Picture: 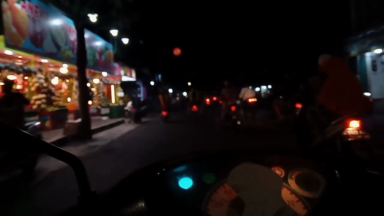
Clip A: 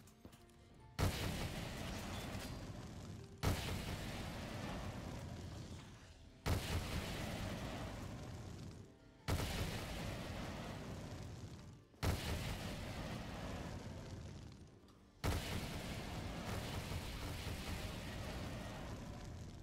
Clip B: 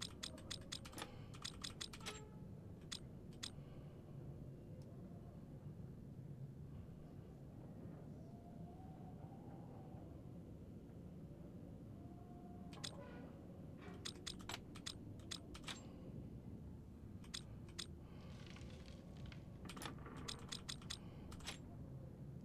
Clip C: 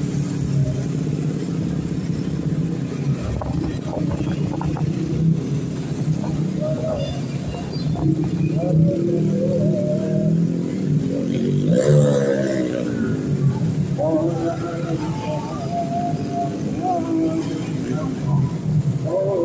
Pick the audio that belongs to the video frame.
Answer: C